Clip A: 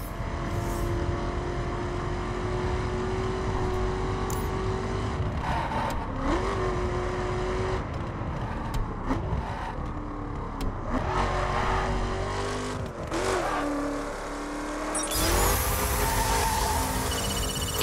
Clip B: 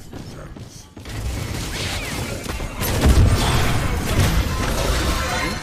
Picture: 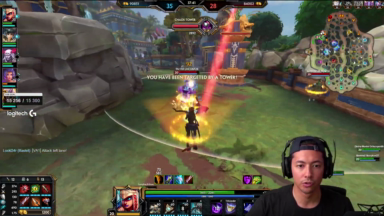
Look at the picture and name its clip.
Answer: B